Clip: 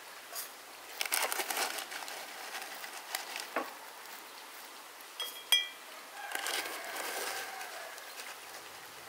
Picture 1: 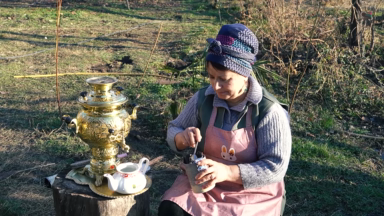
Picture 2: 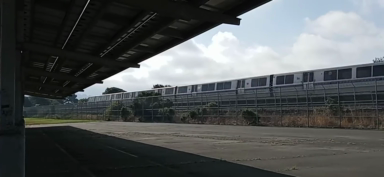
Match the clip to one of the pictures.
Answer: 1